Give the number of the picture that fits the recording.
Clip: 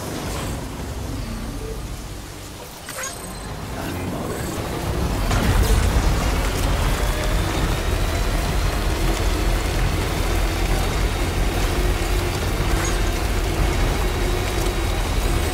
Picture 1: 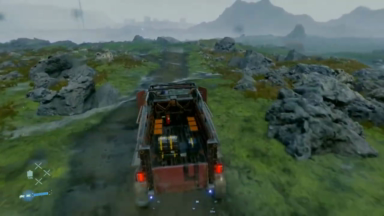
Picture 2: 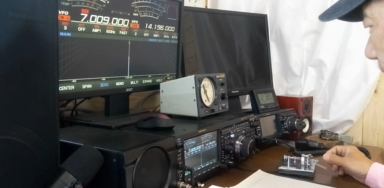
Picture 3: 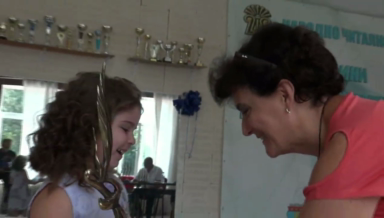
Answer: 1